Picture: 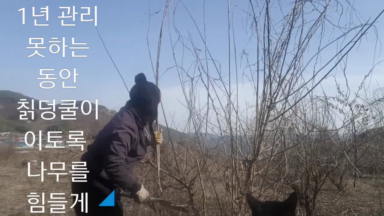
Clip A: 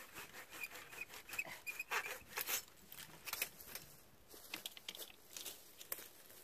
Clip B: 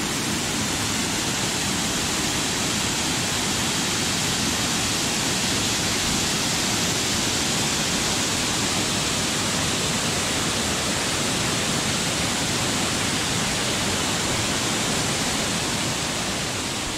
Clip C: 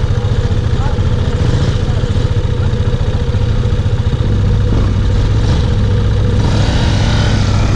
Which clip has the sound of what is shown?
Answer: A